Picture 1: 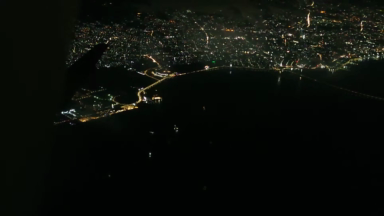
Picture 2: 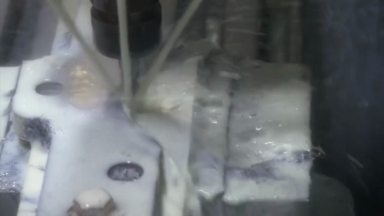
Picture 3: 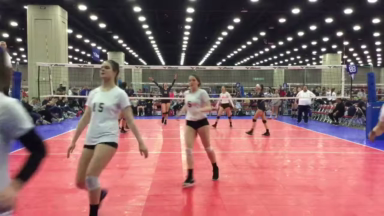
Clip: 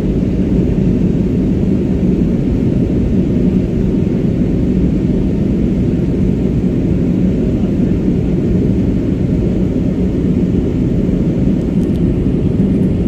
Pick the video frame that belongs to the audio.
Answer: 1